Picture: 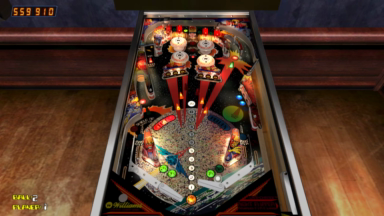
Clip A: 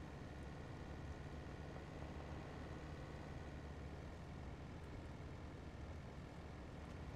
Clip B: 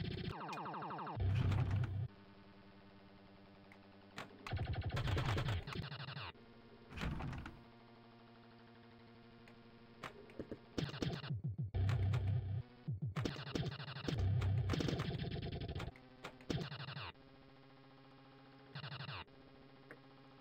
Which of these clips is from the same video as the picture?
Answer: B